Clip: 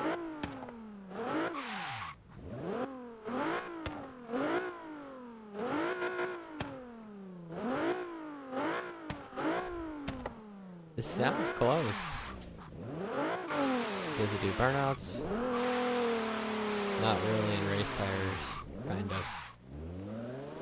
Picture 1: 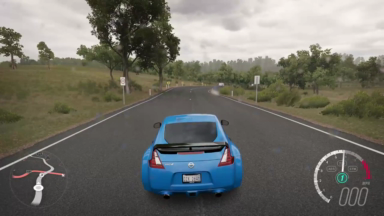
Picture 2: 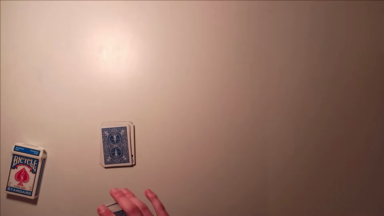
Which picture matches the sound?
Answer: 1